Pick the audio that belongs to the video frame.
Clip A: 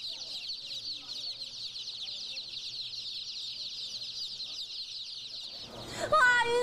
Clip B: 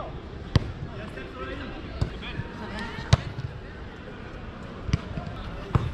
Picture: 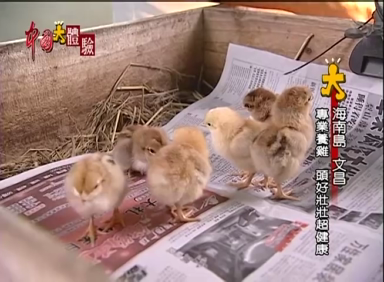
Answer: A